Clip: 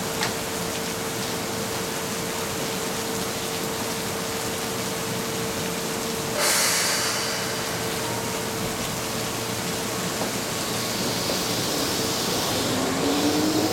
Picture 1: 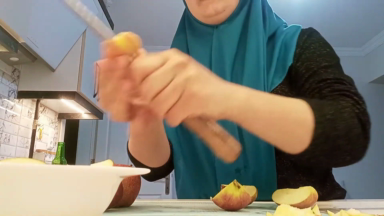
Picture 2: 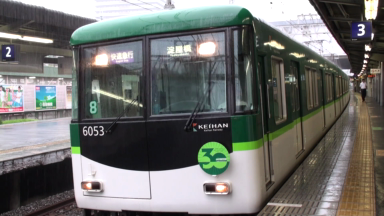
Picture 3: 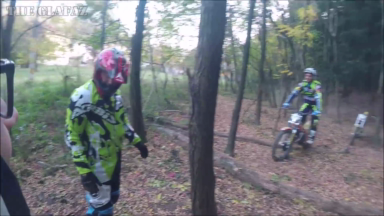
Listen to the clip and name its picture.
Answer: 2